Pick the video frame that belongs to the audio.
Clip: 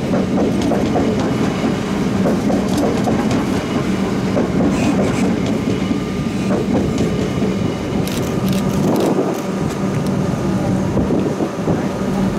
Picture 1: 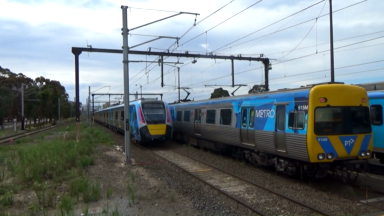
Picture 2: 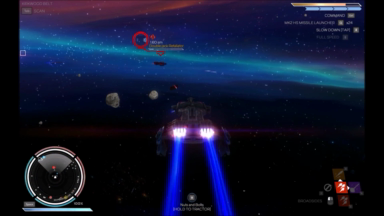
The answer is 1